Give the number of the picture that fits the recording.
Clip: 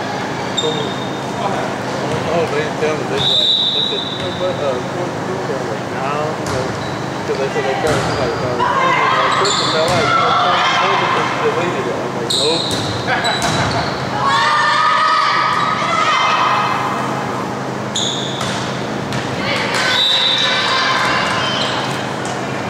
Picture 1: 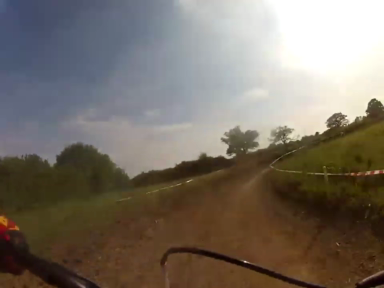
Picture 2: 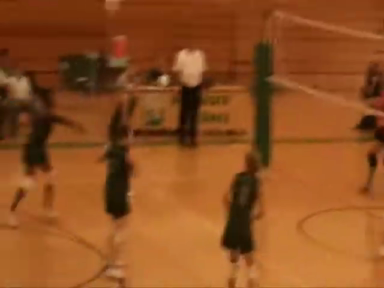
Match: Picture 2